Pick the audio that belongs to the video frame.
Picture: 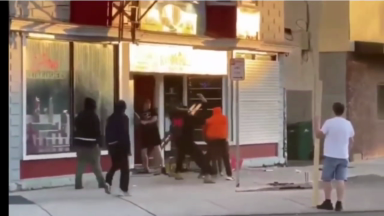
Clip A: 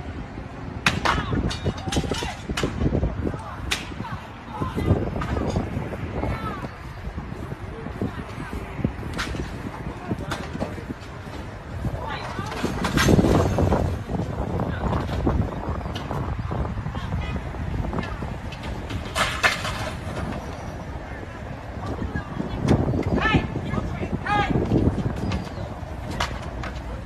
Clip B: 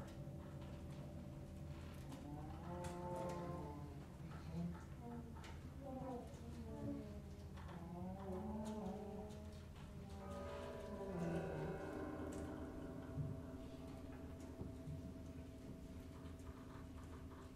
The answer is A